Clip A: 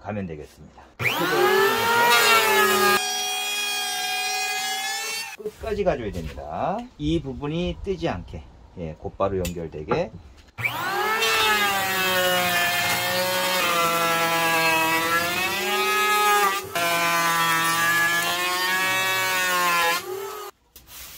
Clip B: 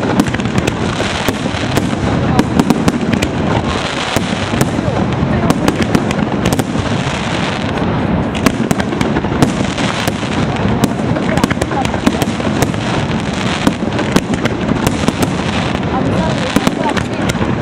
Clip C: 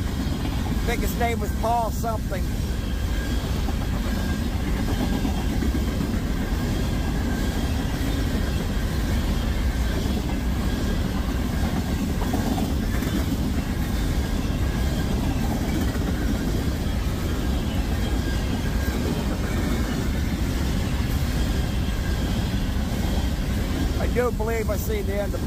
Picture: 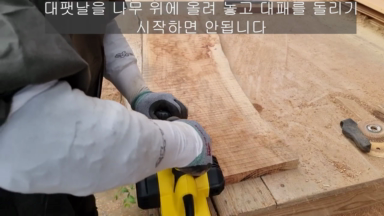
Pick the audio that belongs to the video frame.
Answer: A